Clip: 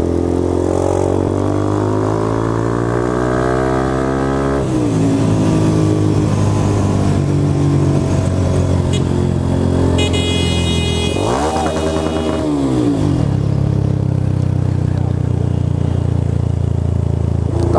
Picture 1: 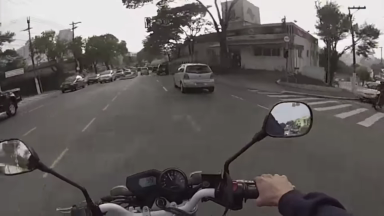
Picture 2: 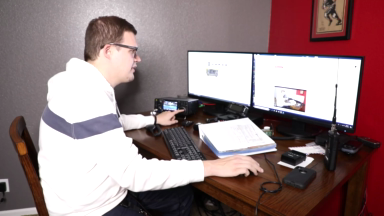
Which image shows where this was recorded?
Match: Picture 1